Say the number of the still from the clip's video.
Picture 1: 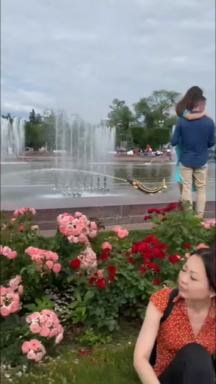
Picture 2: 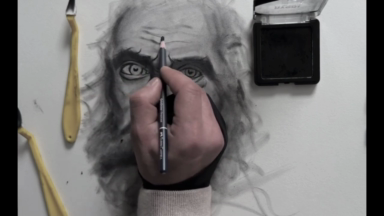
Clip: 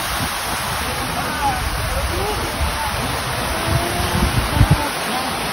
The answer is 1